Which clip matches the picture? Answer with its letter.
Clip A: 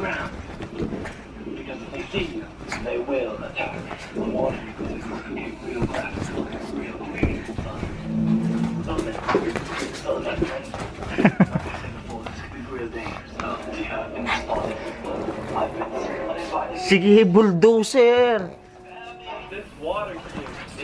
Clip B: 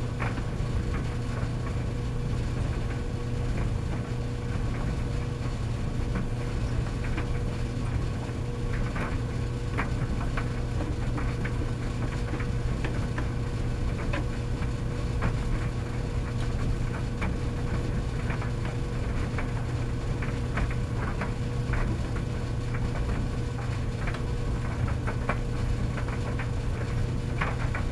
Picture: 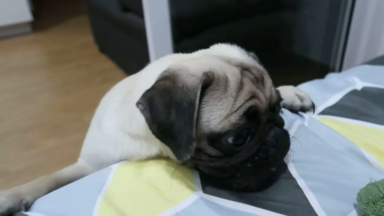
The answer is A